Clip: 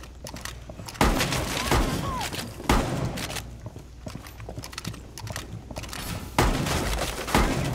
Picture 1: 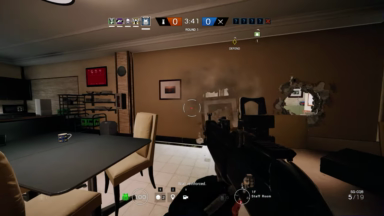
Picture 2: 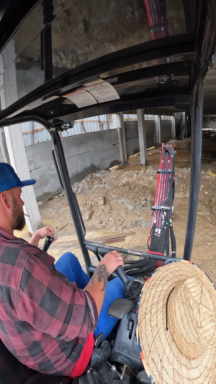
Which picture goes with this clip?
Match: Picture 1